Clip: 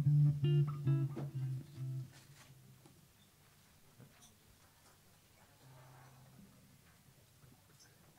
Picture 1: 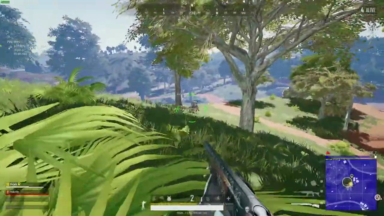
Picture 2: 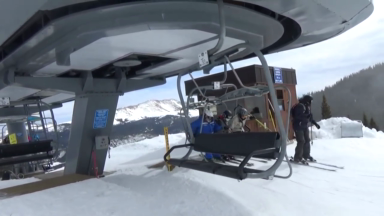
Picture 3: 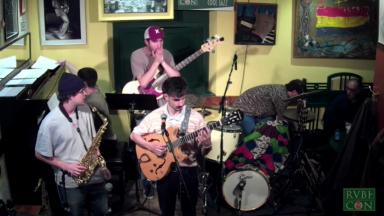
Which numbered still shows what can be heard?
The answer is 3